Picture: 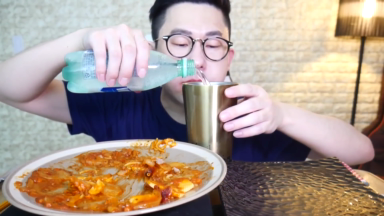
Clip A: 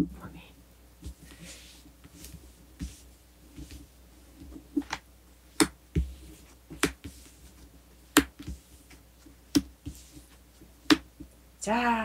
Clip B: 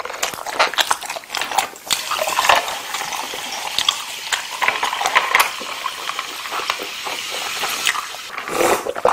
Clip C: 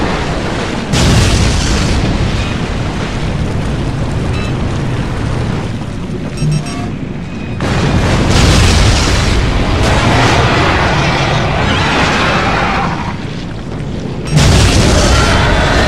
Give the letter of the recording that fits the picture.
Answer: B